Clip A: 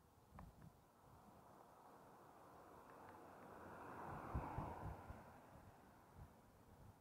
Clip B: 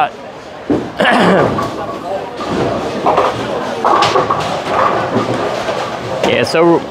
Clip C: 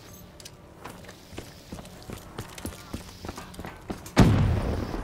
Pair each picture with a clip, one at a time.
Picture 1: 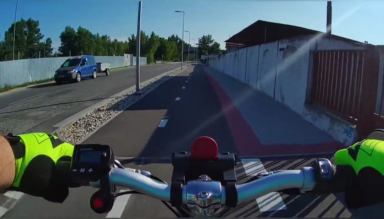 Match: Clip A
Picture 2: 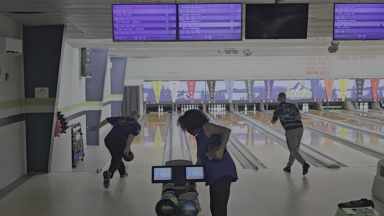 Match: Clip B